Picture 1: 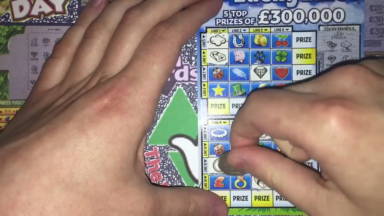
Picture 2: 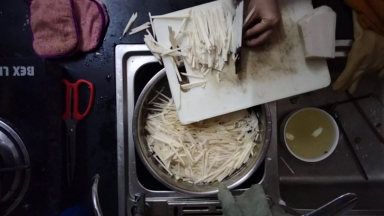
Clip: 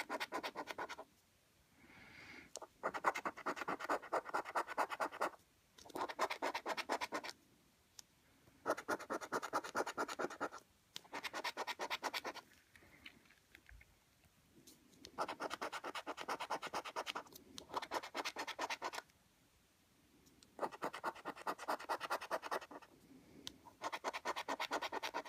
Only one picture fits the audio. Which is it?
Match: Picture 1